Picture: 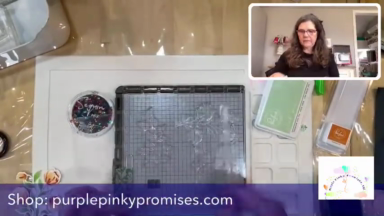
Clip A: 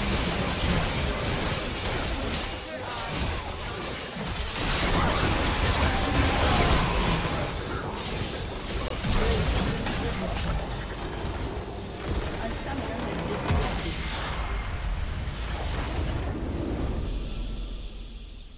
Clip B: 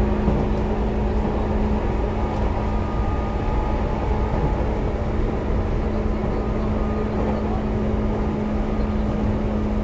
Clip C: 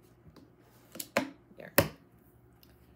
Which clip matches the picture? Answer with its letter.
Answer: C